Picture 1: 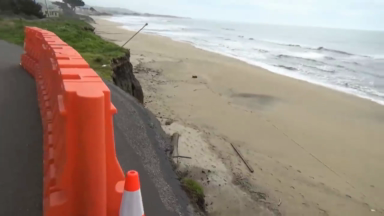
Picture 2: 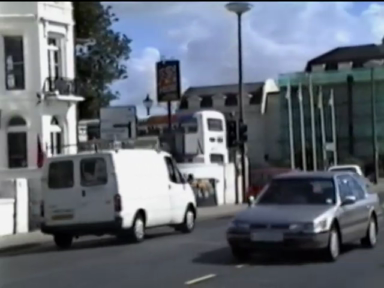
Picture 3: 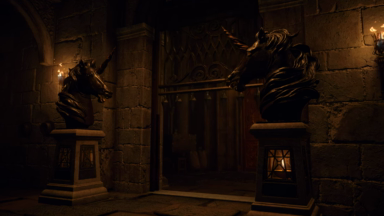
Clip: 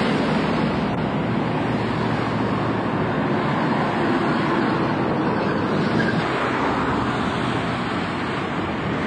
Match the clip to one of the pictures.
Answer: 2